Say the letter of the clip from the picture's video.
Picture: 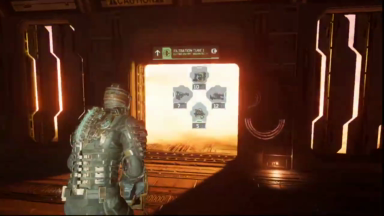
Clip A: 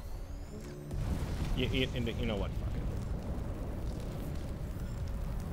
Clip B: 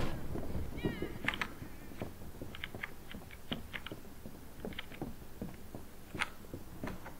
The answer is A